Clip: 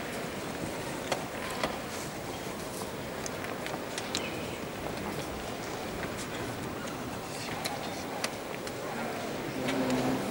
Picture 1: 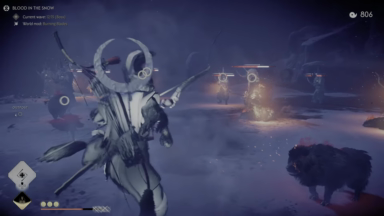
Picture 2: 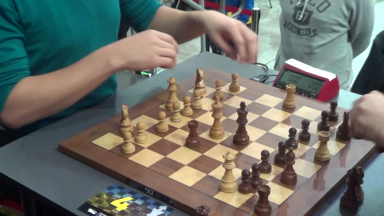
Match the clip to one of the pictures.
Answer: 2